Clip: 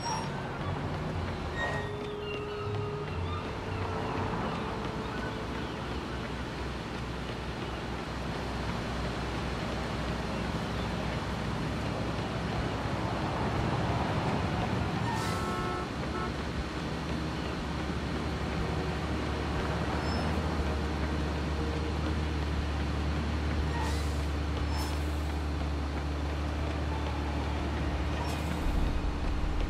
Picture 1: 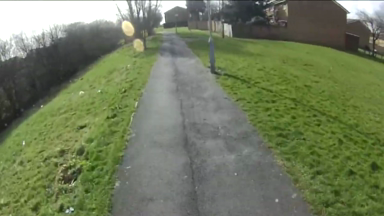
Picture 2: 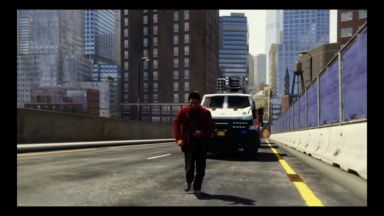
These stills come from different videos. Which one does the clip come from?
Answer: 2